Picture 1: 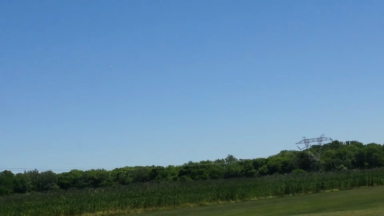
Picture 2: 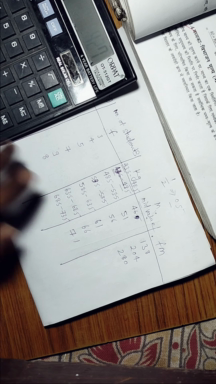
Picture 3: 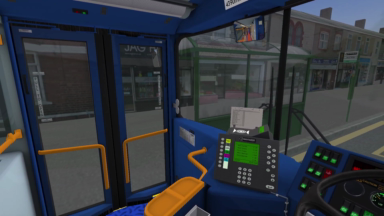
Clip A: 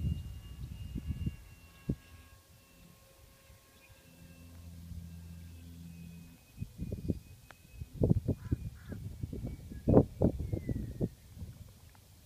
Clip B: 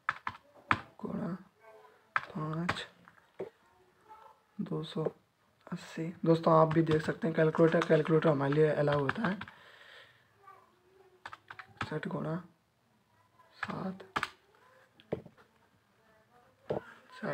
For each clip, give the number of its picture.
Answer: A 1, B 2